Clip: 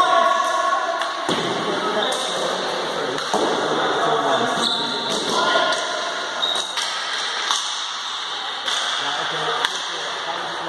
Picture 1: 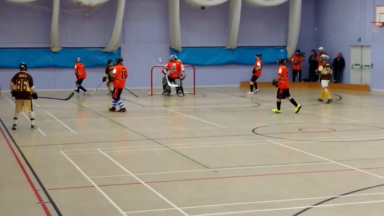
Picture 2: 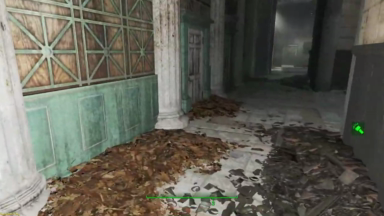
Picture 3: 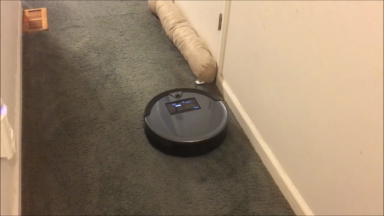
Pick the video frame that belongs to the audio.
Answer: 1